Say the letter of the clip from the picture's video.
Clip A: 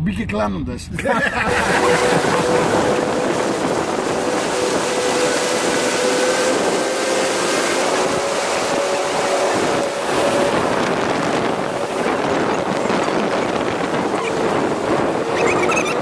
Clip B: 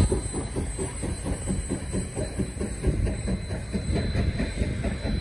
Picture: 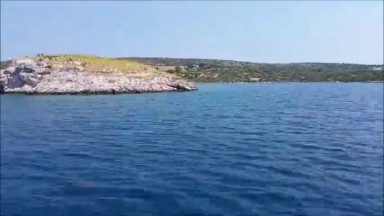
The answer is A